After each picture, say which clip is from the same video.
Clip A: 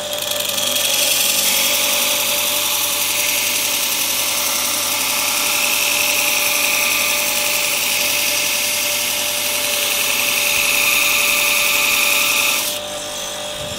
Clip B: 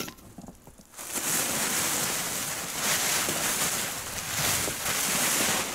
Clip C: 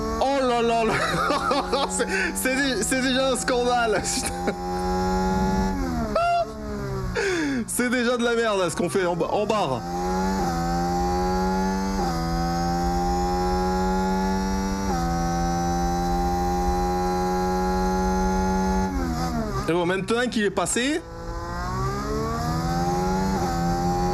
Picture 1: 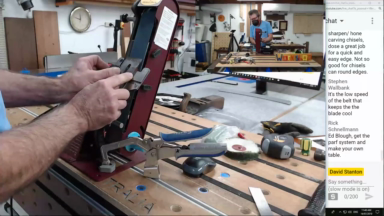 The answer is A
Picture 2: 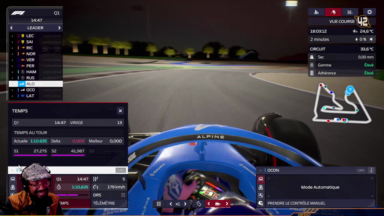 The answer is C